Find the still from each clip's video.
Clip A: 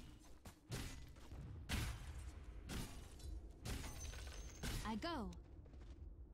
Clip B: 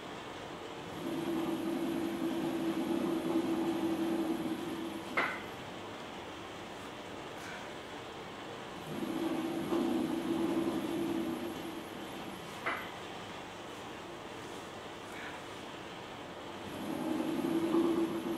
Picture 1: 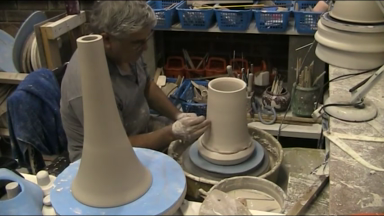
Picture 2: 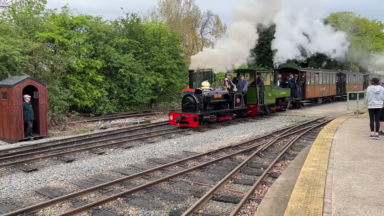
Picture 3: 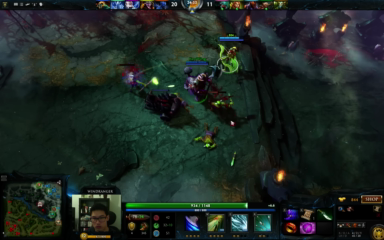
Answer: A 3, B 1